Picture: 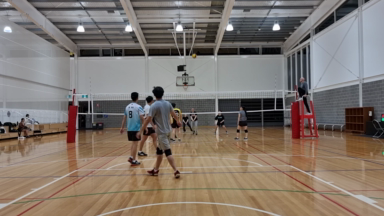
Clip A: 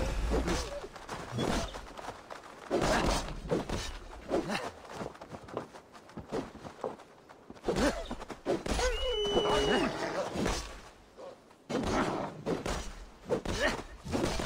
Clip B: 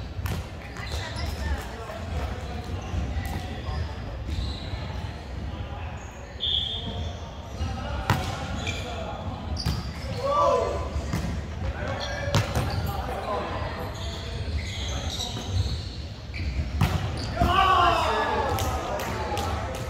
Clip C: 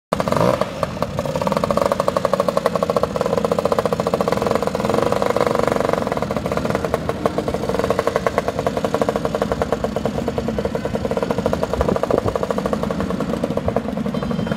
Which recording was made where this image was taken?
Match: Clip B